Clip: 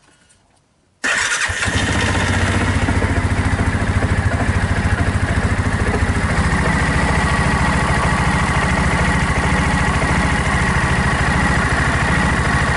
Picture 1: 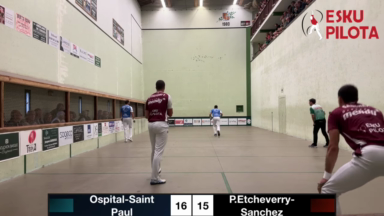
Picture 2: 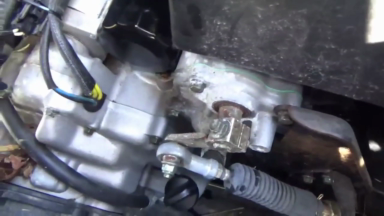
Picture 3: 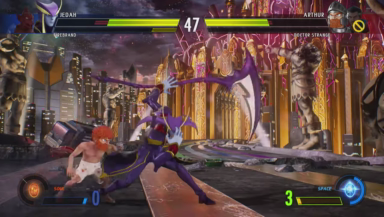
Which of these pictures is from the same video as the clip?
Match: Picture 2